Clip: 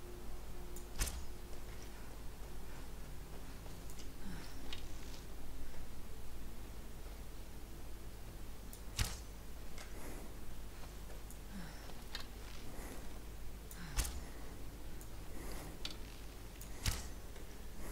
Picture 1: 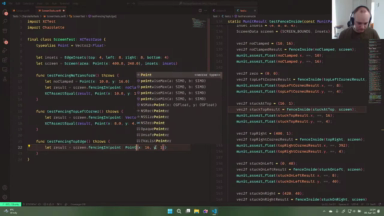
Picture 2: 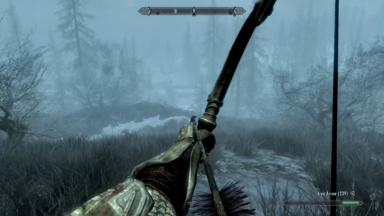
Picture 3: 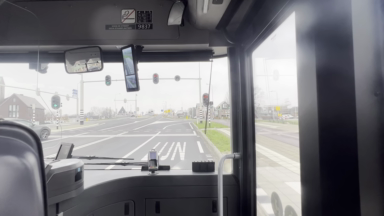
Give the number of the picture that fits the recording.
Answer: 2